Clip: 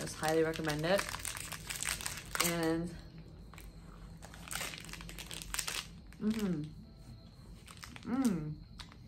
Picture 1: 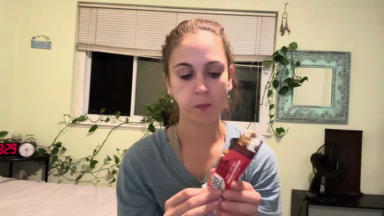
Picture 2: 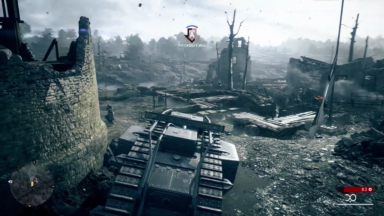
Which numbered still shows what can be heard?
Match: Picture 1